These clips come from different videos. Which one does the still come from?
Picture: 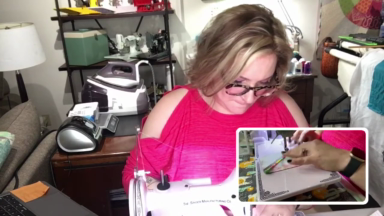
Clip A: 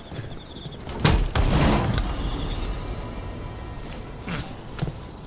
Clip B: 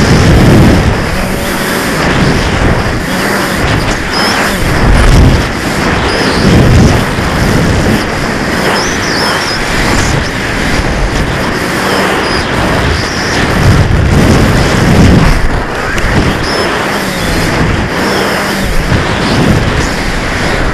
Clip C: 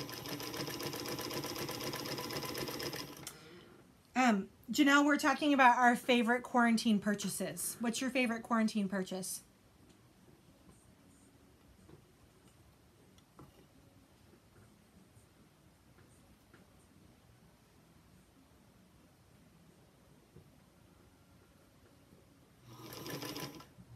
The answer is C